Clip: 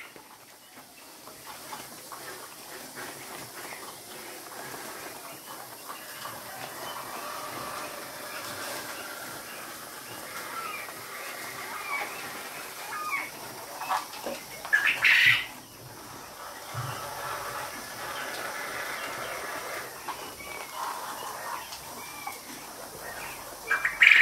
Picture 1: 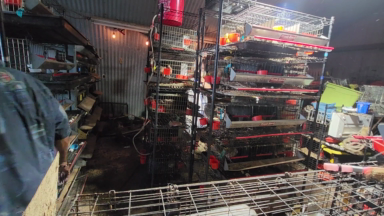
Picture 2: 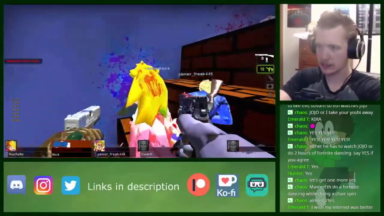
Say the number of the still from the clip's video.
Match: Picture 1